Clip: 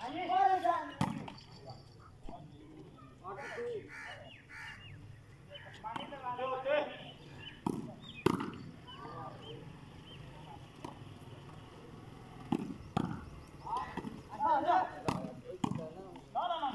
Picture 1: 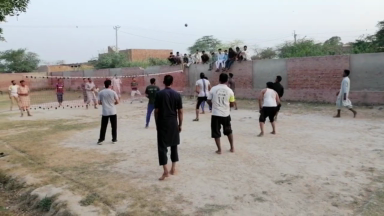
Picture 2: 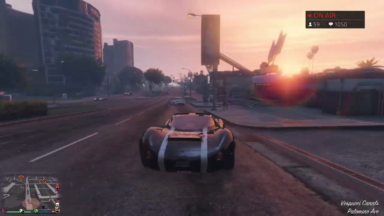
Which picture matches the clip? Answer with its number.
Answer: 1